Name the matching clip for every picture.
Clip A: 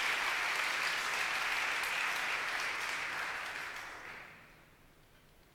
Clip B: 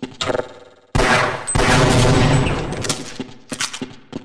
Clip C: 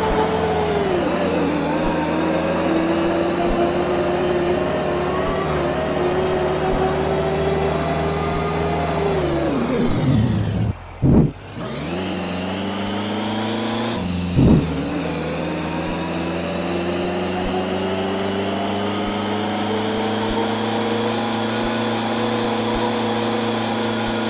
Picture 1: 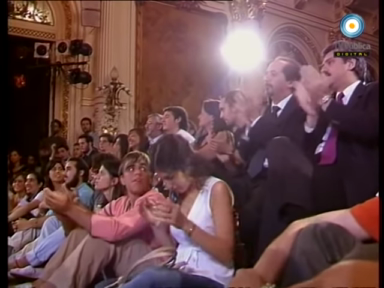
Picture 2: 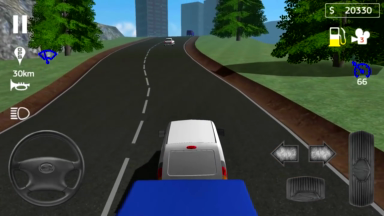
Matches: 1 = A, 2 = C